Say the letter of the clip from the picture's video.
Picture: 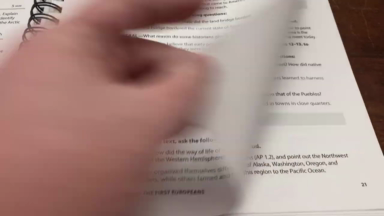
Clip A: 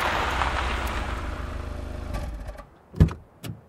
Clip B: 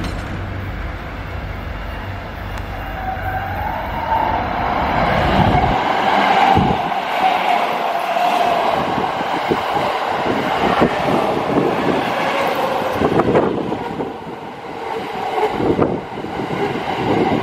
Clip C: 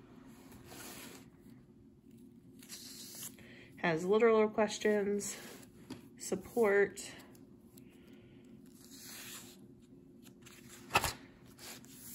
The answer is C